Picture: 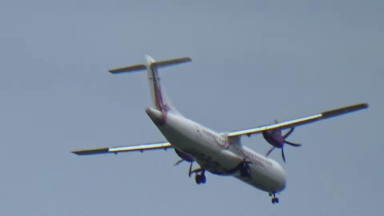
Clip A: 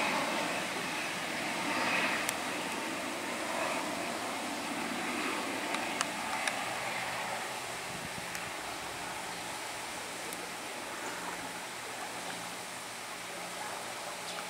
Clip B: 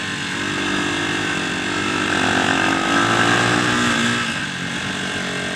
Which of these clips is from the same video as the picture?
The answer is A